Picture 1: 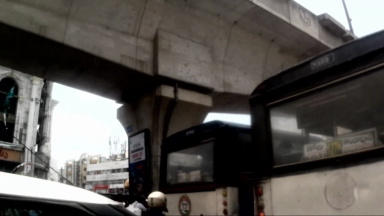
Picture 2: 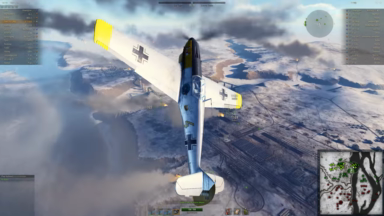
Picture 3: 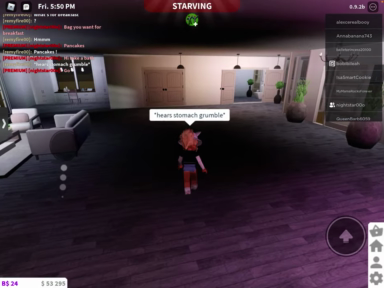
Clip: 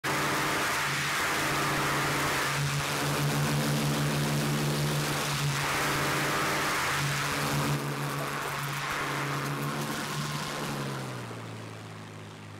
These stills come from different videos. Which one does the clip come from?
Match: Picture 2